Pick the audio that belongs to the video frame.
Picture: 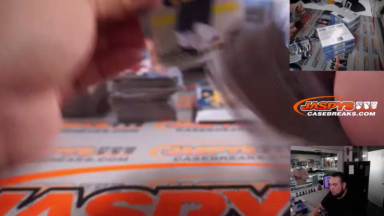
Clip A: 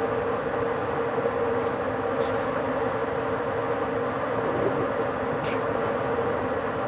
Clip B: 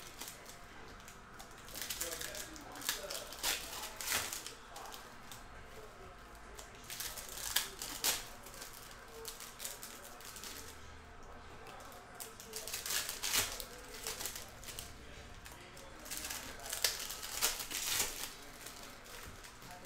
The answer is B